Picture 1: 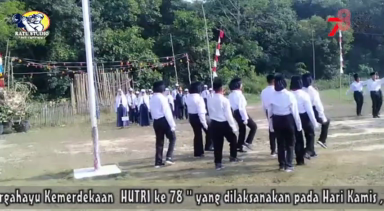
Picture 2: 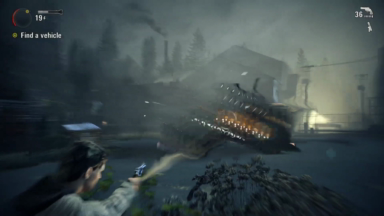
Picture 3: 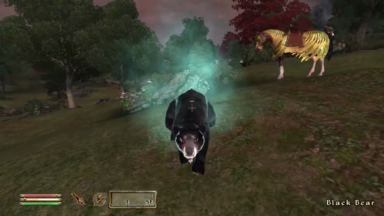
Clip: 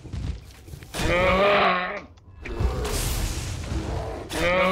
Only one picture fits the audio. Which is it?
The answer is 3